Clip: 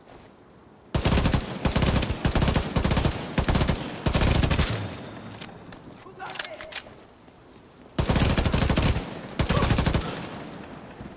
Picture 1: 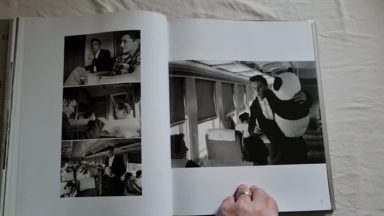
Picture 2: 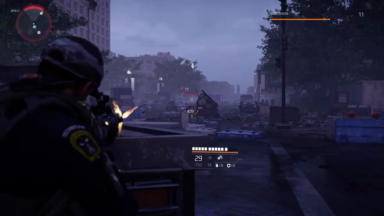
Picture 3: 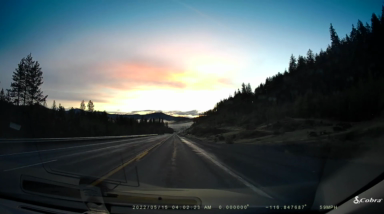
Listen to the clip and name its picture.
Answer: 2